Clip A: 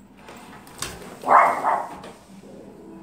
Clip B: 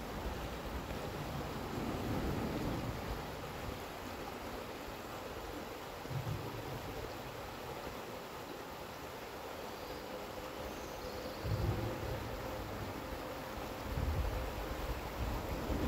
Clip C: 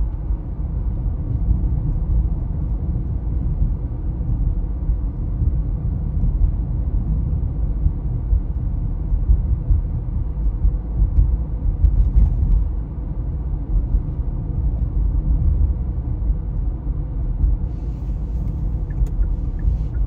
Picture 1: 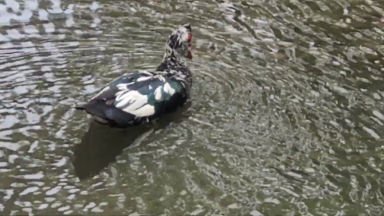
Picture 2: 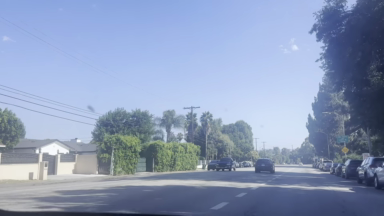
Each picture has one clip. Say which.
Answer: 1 B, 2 C